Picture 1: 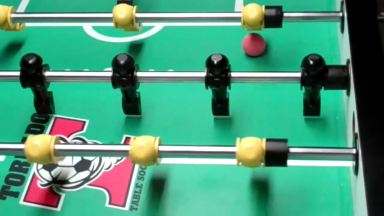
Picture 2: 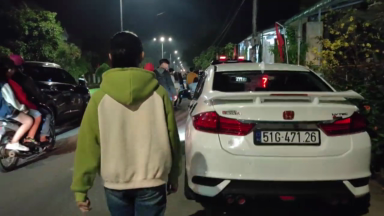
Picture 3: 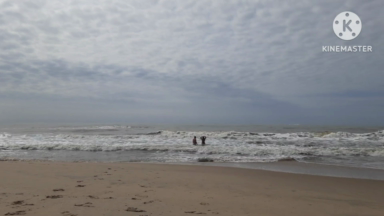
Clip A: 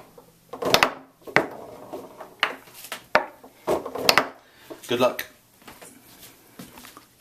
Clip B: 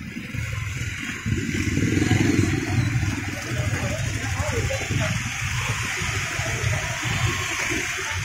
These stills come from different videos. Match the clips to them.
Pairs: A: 1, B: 2